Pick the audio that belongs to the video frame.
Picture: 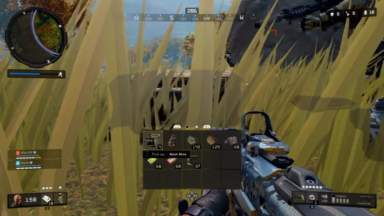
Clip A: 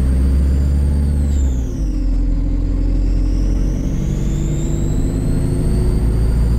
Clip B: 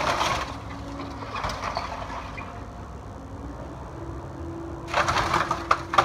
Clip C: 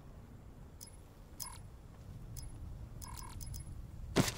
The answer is C